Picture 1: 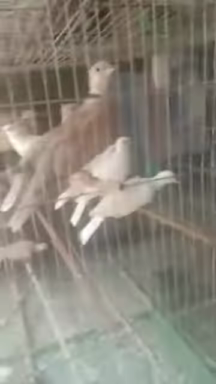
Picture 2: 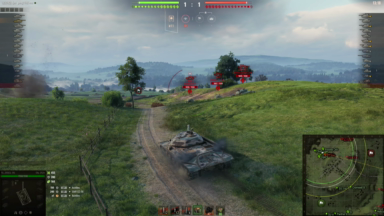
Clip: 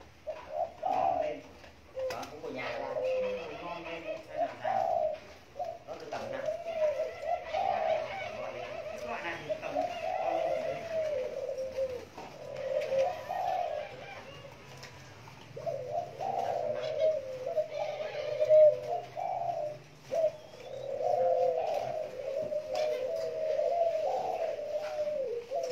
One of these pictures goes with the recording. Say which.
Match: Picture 1